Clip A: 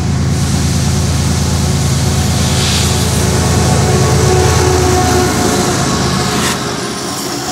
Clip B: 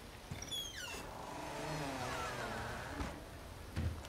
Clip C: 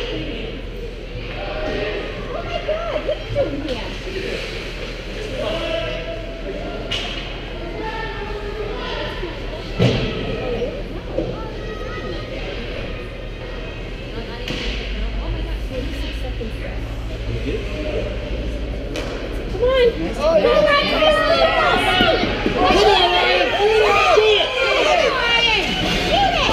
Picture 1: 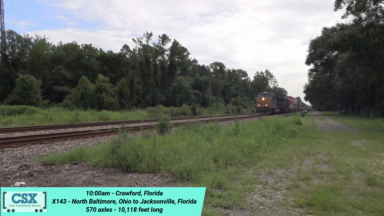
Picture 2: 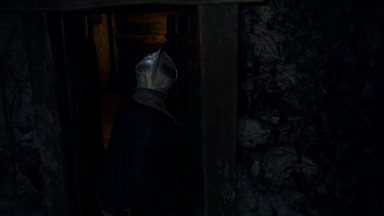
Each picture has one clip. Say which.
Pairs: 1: A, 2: B